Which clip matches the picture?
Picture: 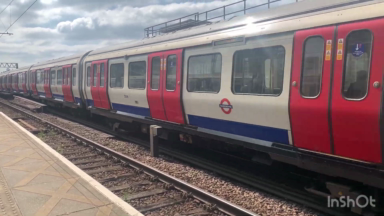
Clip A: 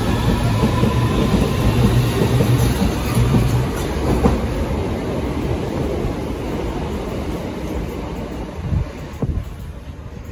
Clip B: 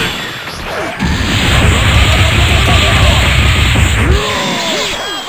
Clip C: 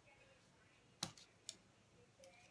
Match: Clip A